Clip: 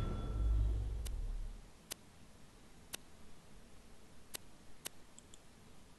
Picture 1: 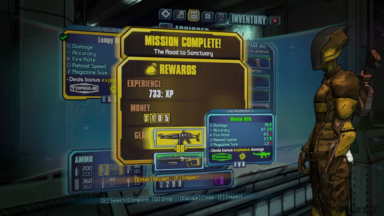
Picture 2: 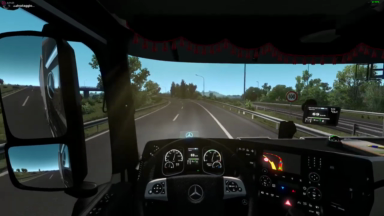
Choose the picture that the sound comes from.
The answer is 1